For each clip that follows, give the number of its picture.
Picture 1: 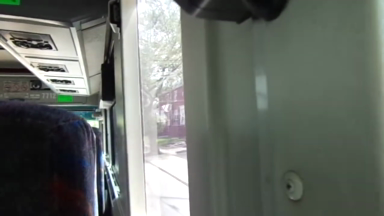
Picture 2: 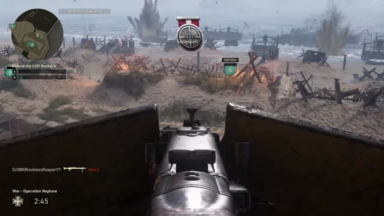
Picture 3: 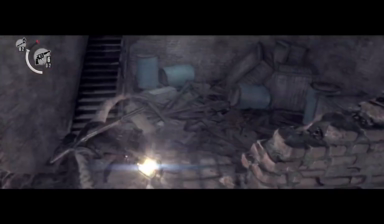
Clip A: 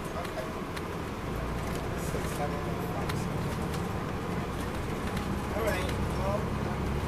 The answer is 1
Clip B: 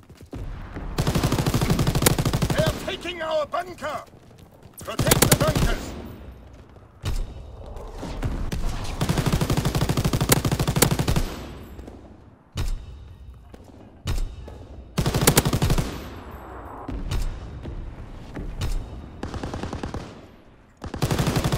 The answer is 2